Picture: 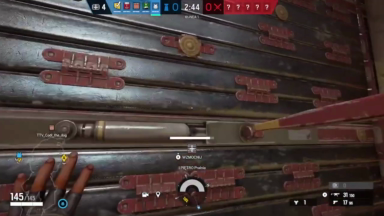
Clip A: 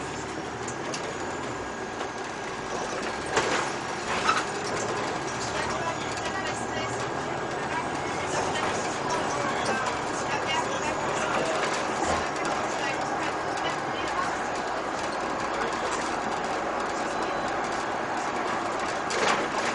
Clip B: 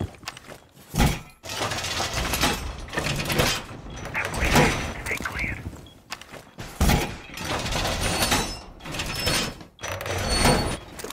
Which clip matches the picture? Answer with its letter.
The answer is B